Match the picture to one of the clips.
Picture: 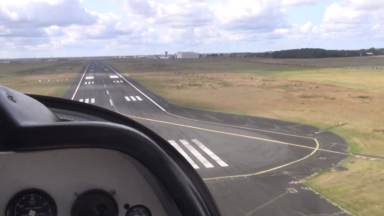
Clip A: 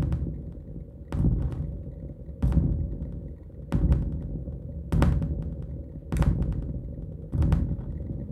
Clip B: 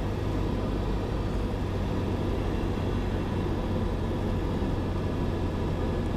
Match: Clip B